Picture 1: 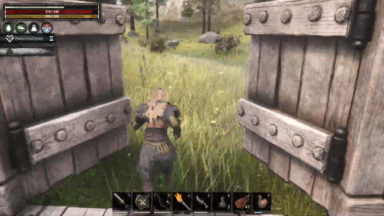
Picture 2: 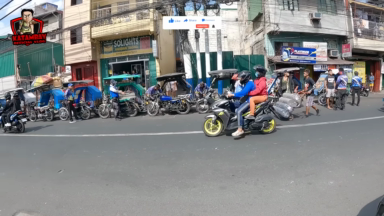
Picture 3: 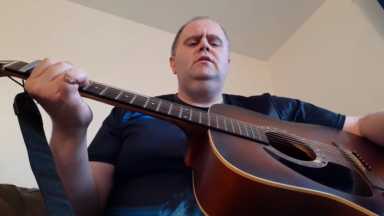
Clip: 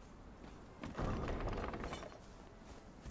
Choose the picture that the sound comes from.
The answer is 1